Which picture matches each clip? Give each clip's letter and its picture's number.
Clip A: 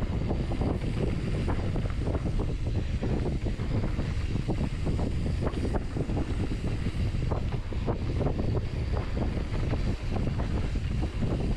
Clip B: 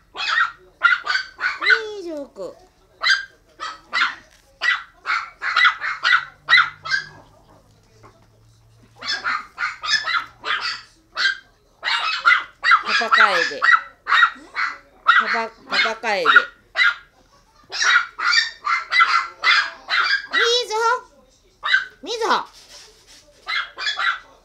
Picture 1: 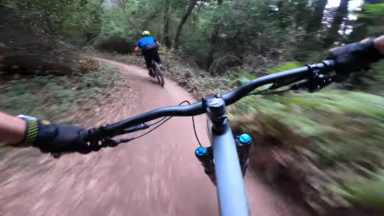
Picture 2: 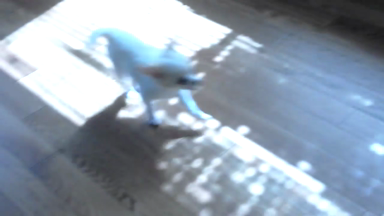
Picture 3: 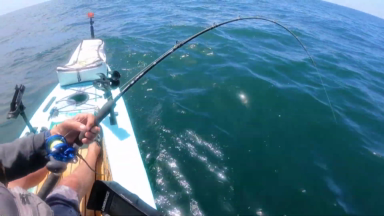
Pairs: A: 1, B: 2